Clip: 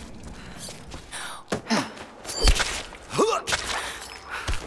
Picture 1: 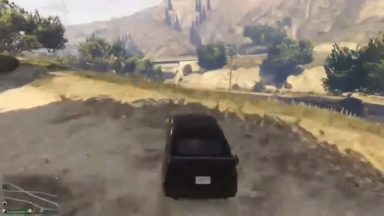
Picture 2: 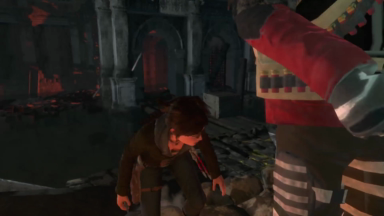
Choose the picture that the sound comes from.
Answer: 2